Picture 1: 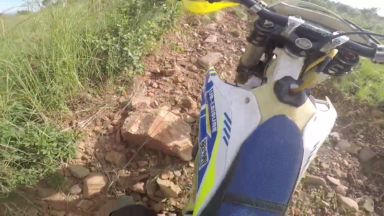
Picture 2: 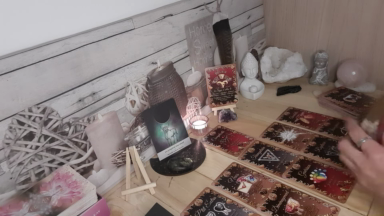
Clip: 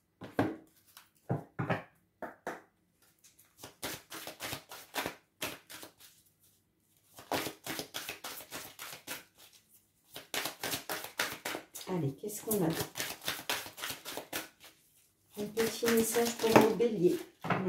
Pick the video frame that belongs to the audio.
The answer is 2